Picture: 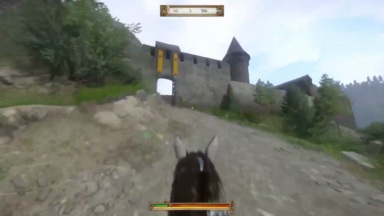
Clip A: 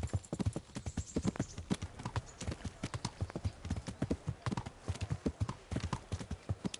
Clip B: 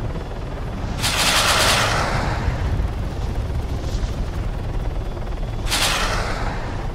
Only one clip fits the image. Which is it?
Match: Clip A